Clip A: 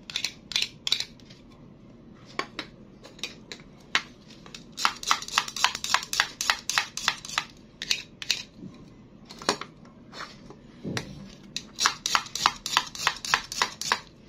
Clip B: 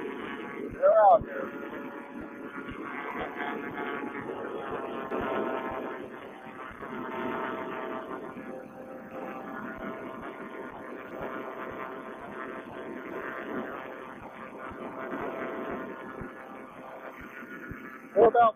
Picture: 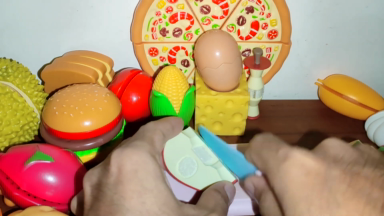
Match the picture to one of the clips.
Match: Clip A